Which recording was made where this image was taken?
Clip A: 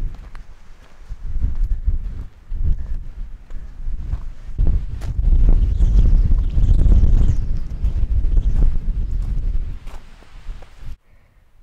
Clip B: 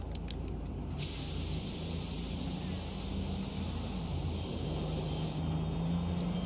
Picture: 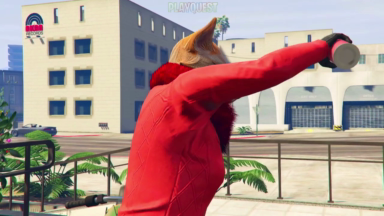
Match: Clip B